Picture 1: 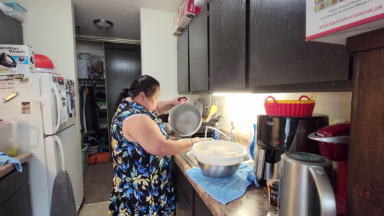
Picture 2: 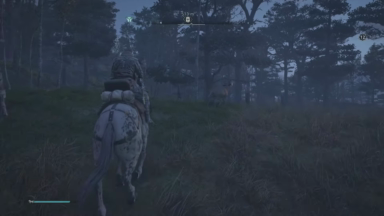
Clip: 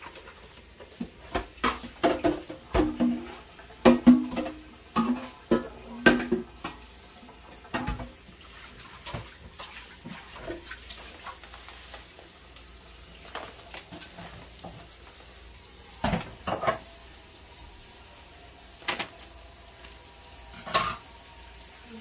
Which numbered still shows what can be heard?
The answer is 1